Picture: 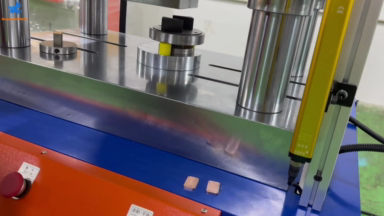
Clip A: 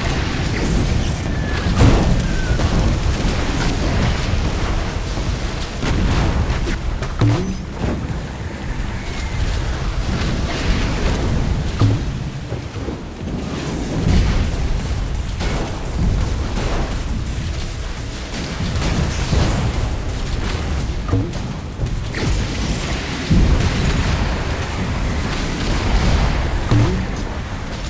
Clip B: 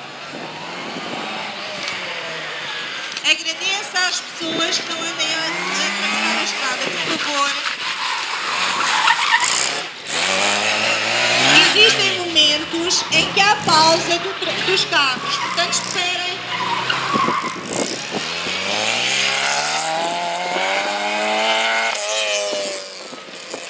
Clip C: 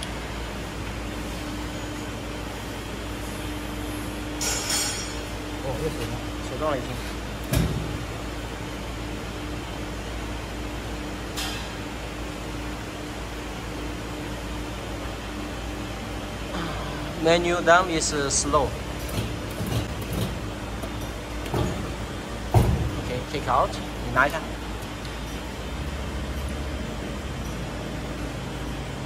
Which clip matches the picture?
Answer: C